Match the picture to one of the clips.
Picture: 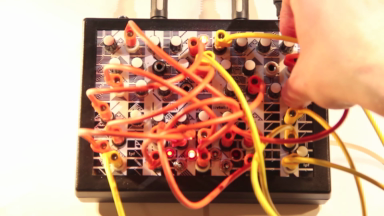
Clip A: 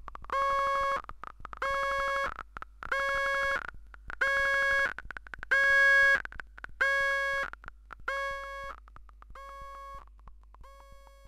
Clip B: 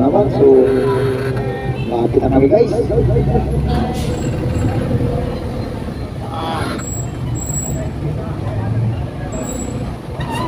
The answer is A